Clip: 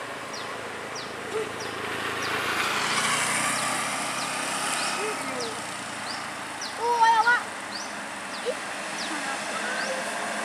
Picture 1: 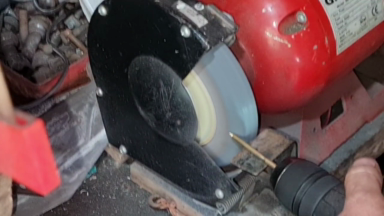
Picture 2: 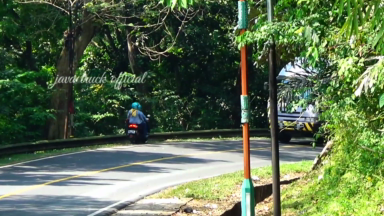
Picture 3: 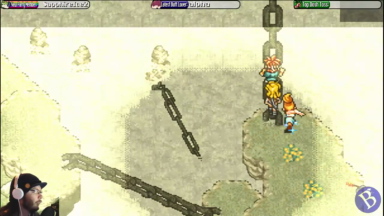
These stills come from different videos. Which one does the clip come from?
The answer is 2